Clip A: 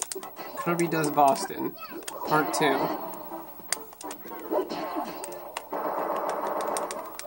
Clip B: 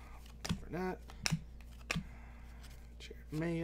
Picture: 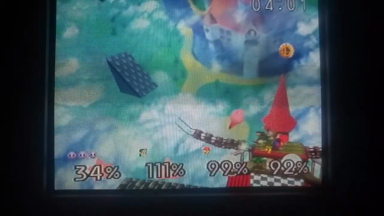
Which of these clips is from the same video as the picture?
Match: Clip A